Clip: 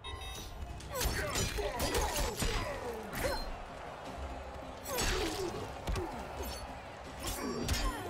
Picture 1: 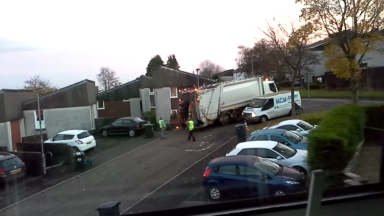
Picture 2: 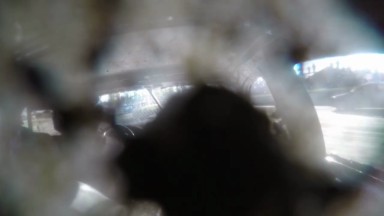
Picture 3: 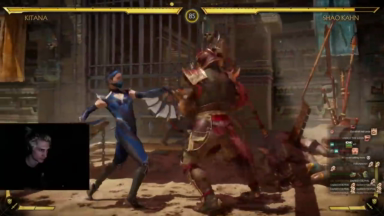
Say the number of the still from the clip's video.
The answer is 3